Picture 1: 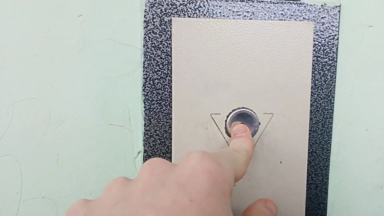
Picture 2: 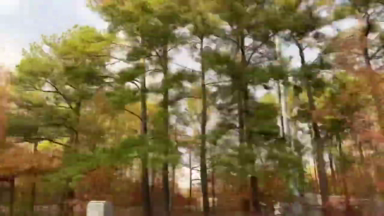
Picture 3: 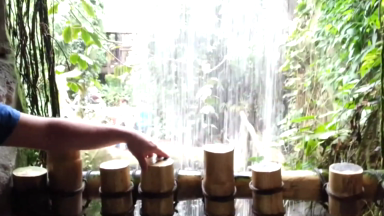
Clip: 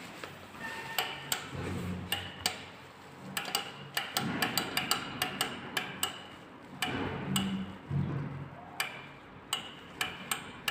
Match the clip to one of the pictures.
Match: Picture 1